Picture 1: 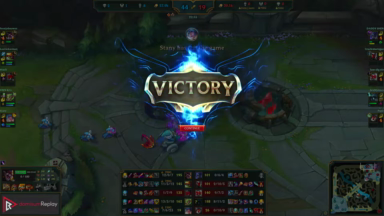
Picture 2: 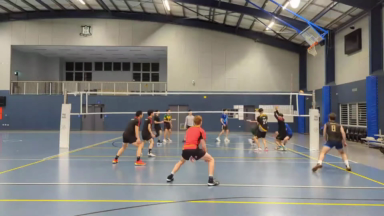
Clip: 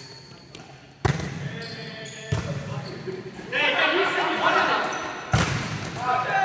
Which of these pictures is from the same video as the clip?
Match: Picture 2